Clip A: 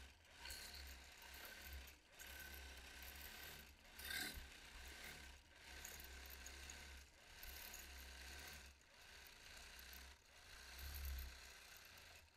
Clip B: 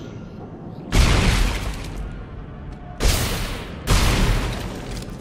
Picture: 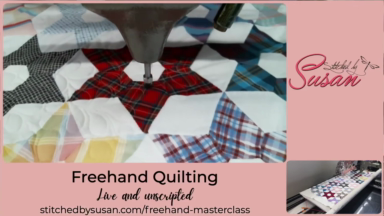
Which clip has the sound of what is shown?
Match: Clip A